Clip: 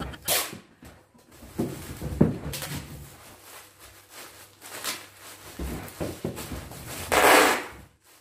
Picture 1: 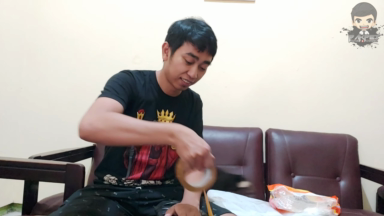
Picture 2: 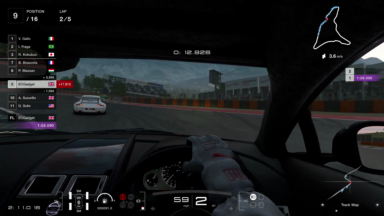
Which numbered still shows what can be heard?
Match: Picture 1